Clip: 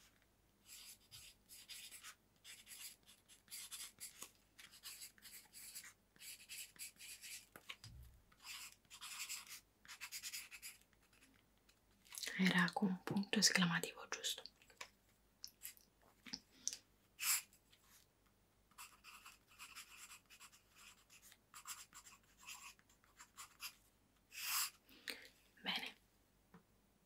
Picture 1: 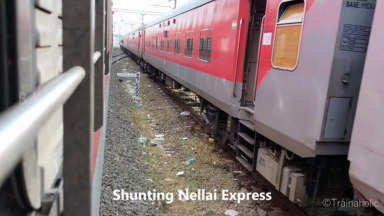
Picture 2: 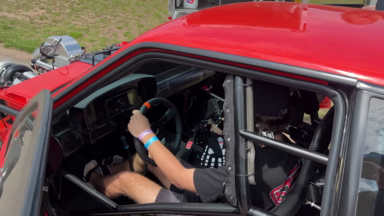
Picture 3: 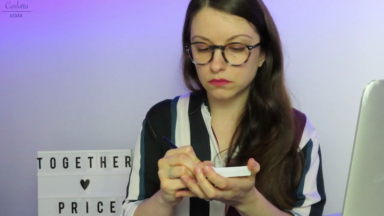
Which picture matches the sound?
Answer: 3